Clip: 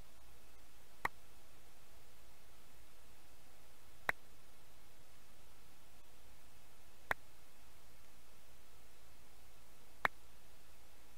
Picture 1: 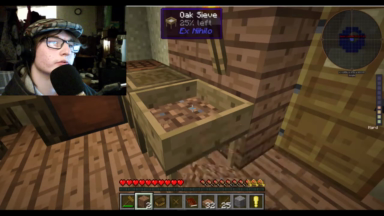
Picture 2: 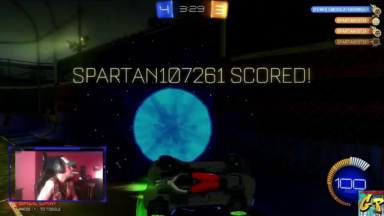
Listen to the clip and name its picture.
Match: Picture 1